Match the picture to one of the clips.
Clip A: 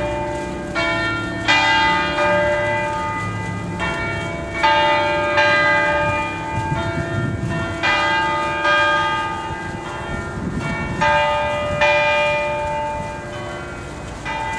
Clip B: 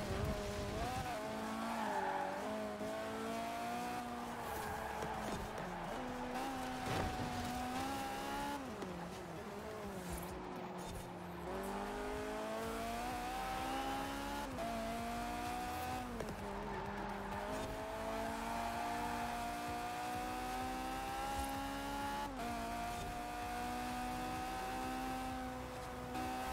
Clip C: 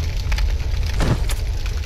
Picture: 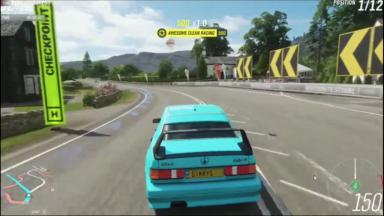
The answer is B